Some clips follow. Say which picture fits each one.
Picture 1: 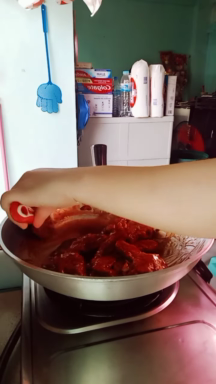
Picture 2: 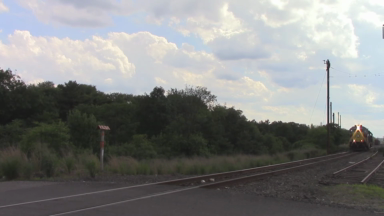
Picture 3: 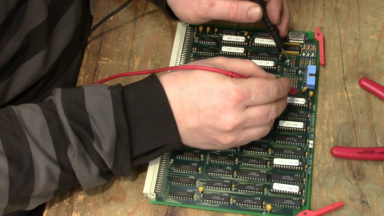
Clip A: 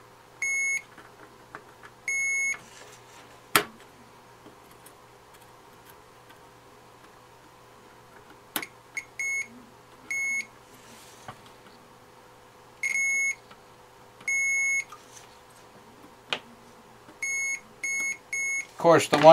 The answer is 3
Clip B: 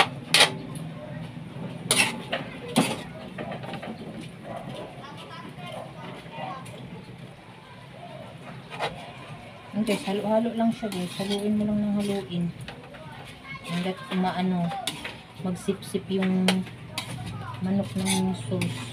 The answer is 1